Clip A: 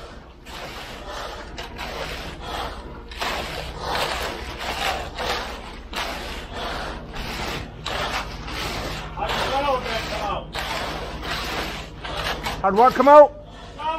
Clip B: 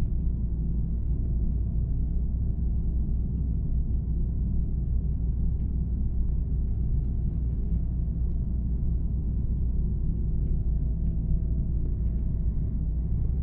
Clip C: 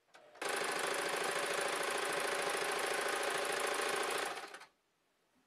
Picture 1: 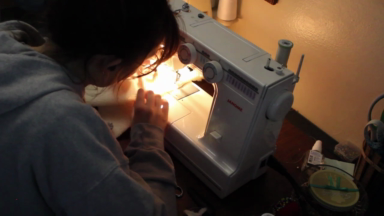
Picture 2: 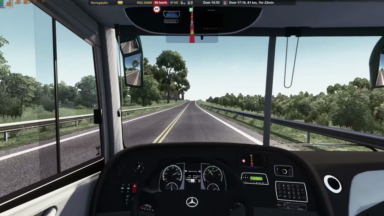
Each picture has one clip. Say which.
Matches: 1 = C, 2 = B